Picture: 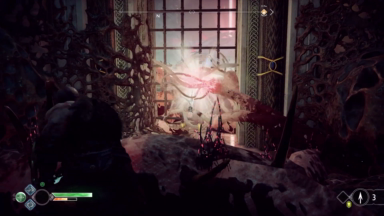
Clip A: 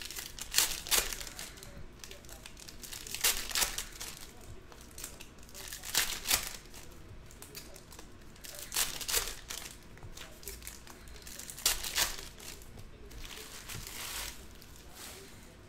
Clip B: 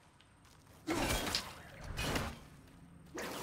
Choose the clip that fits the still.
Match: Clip B